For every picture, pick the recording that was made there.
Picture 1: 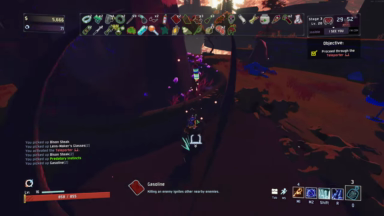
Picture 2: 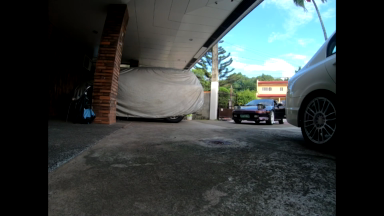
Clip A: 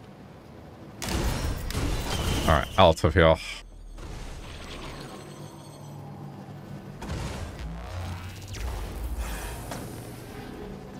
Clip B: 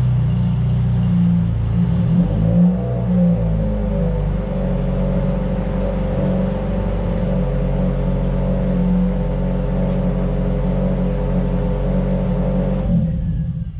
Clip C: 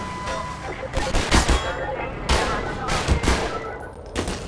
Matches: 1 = A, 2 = B